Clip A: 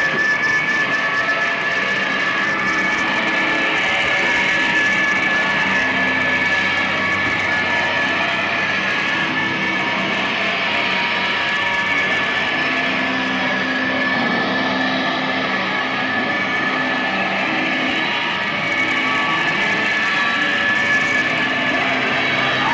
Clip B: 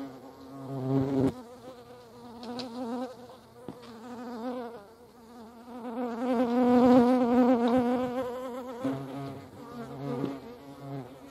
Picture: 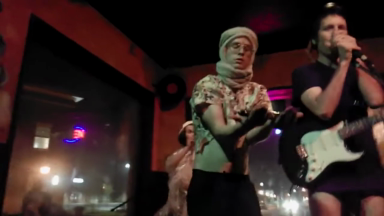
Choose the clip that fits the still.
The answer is A